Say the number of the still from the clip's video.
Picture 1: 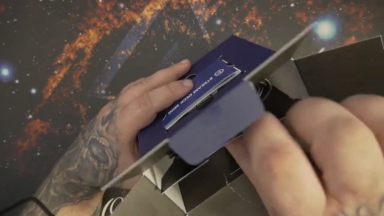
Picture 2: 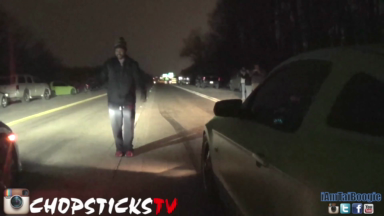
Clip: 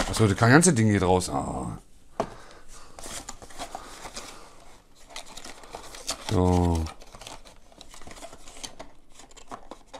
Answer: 1